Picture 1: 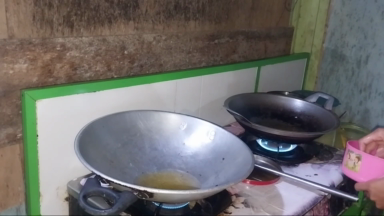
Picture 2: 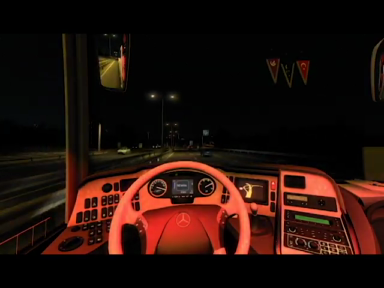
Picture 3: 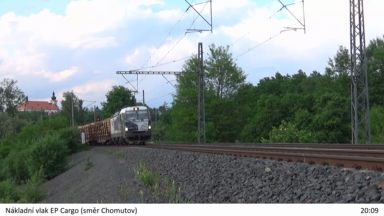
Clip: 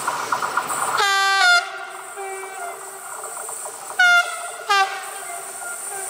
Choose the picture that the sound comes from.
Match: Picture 3